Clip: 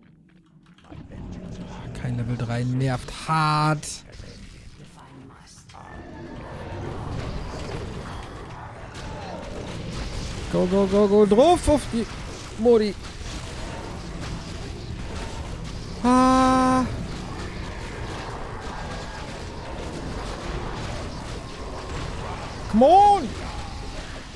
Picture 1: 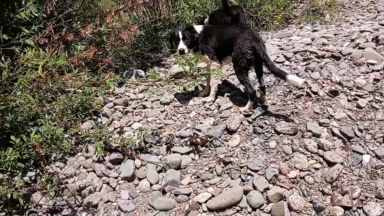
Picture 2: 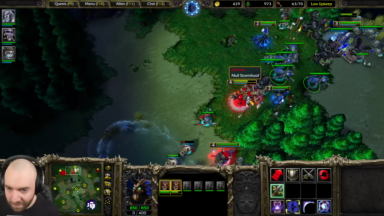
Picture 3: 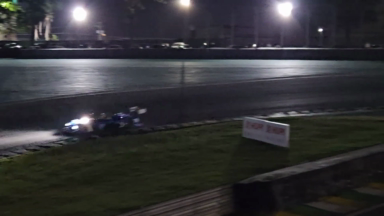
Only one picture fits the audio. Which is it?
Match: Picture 2